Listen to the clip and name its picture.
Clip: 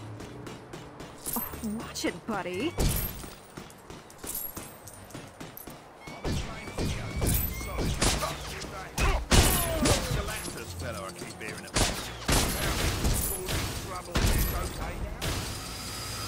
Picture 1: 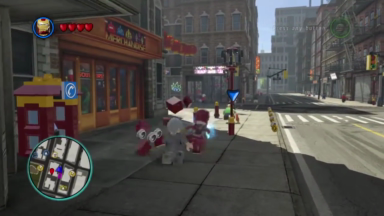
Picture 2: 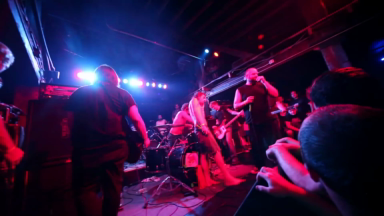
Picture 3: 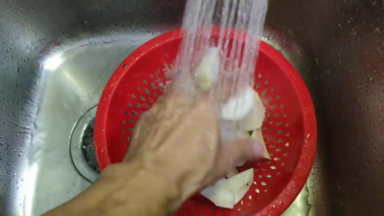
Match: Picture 1